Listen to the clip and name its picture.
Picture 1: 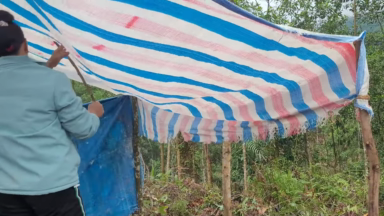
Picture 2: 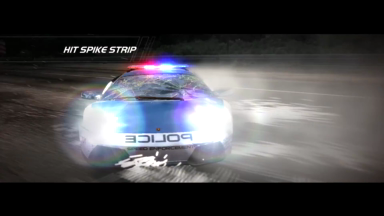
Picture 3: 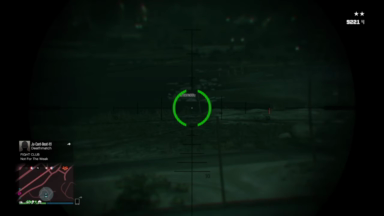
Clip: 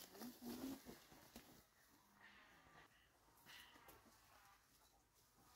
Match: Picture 1